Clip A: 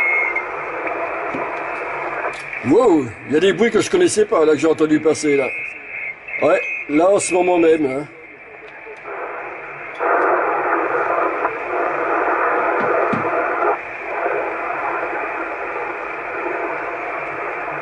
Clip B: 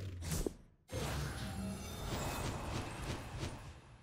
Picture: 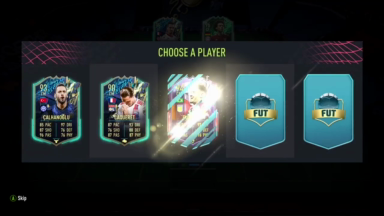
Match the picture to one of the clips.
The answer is B